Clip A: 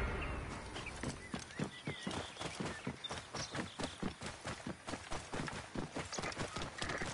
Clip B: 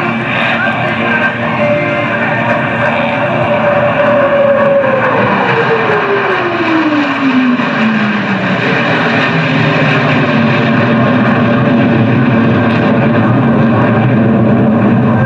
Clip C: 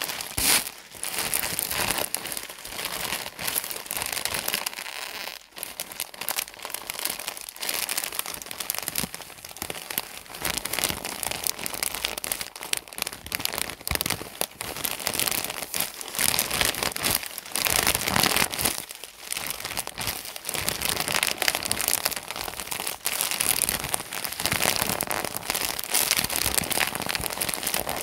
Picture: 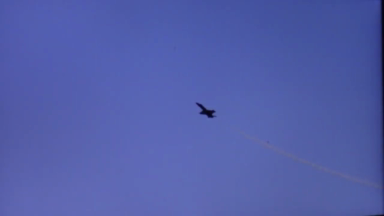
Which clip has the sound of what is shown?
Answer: B